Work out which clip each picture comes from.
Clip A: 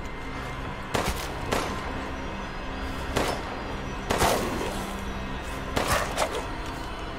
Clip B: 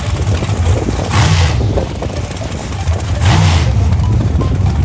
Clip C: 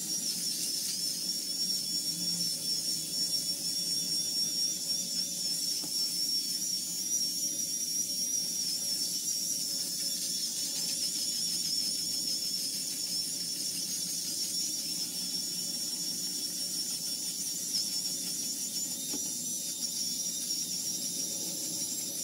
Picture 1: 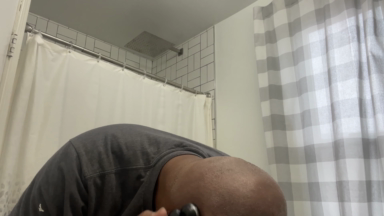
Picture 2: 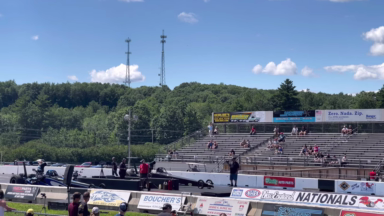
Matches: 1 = C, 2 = B